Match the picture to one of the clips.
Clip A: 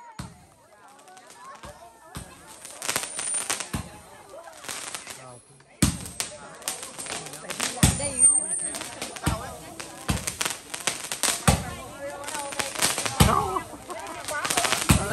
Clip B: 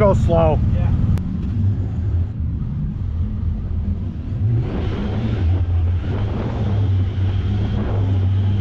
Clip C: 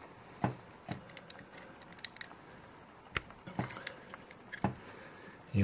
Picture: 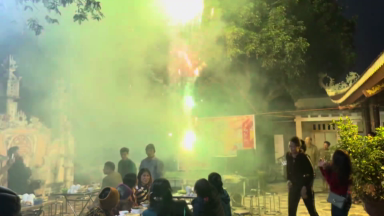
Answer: A